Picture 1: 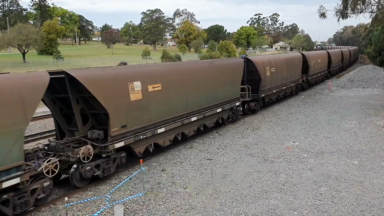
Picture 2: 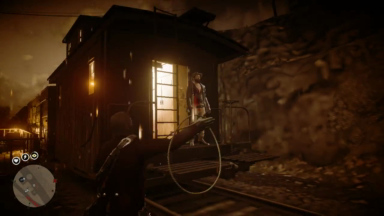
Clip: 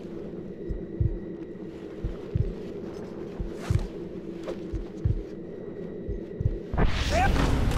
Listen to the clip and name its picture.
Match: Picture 2